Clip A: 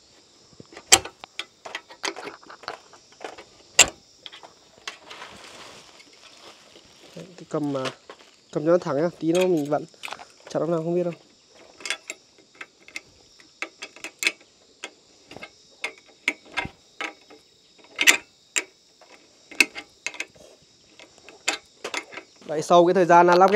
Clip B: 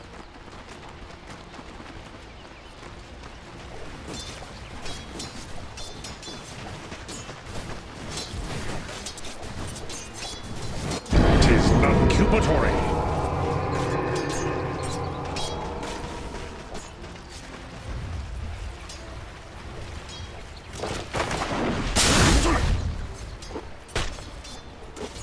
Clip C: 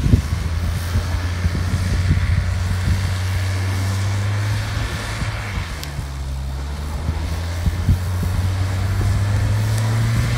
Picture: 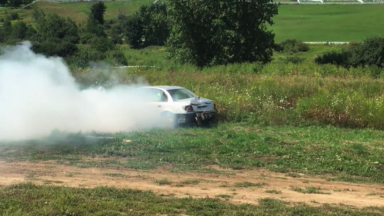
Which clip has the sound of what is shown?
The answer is C